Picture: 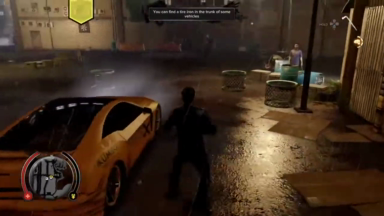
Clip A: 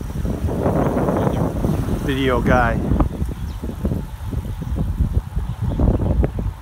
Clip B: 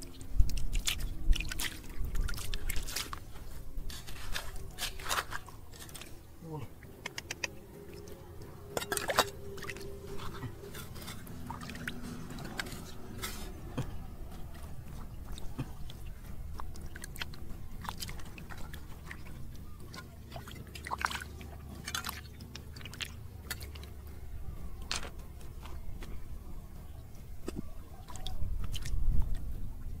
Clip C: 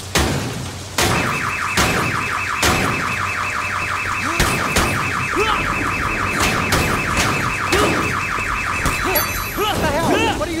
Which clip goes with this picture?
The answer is C